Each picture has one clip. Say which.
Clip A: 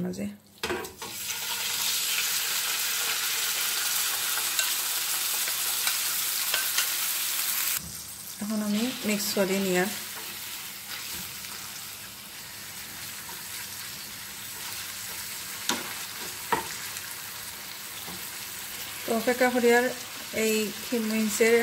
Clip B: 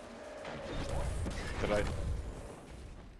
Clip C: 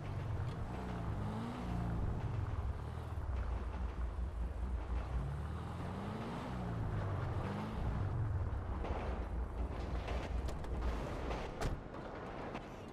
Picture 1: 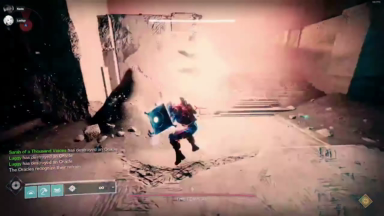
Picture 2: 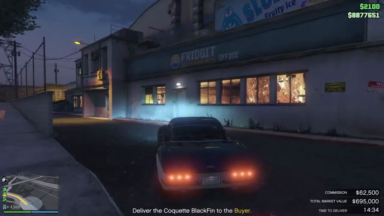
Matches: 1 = B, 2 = C